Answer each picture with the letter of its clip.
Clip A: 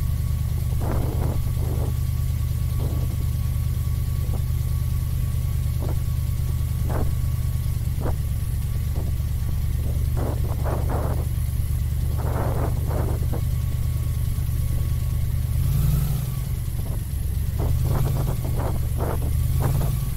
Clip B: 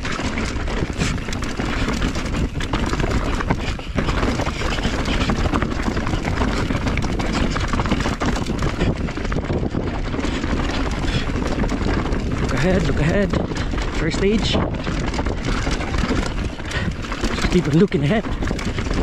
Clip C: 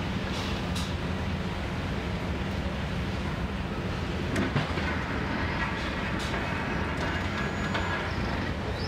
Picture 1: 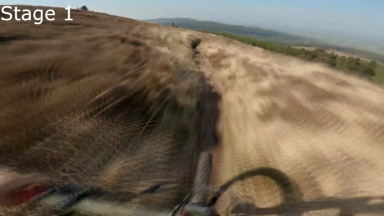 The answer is B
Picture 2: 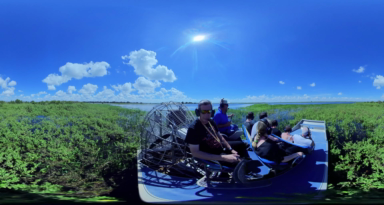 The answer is A